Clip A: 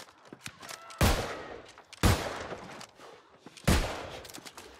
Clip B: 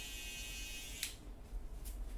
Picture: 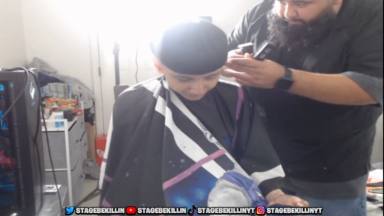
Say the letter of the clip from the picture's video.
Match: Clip B